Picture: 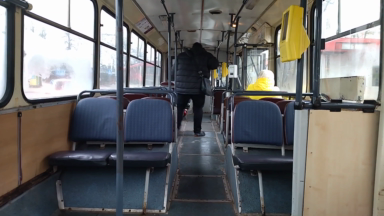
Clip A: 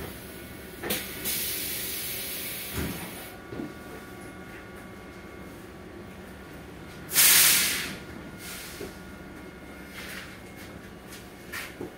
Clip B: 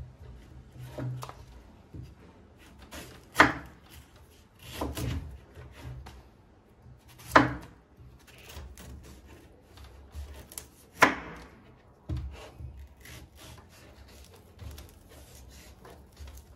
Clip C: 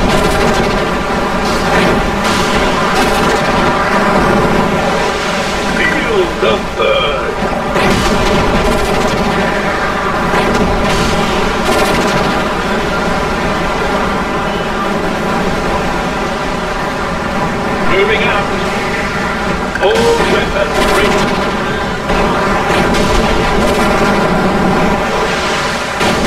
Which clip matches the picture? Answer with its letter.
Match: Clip A